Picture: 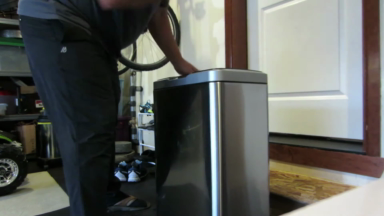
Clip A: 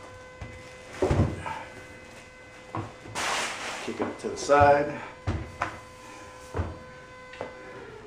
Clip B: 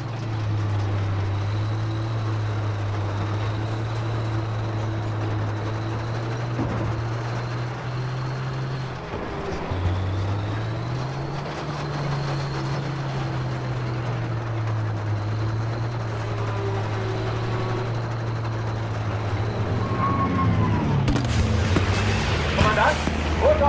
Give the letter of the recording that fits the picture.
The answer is A